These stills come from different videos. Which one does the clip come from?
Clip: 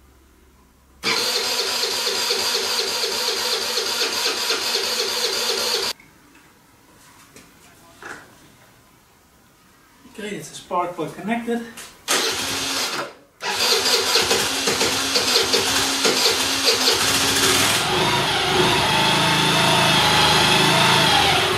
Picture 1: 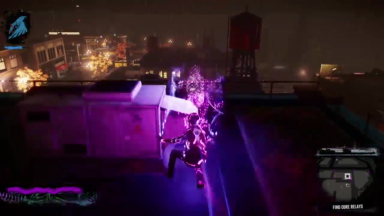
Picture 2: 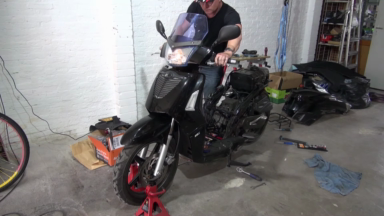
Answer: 2